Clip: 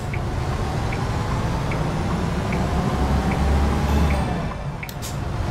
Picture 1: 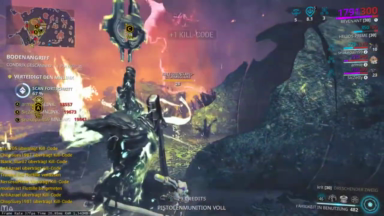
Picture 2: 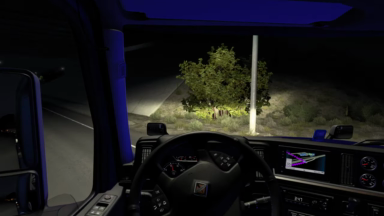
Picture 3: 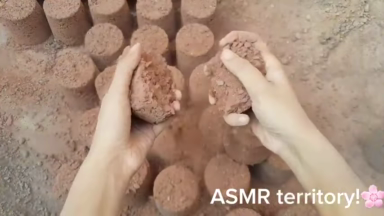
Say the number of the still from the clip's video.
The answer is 2